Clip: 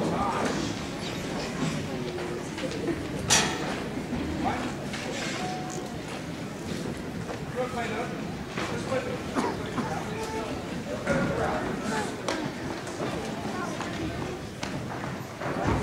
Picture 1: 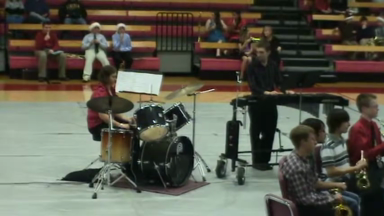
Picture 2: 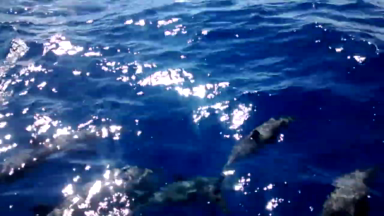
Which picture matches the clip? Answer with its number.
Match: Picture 1